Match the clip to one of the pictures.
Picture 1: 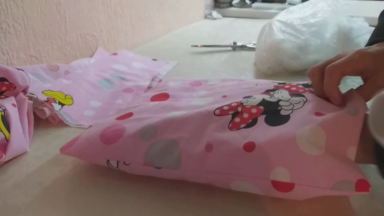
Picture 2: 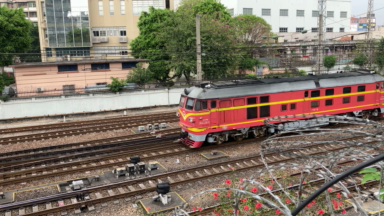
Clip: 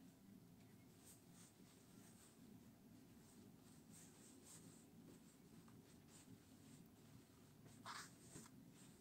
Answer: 1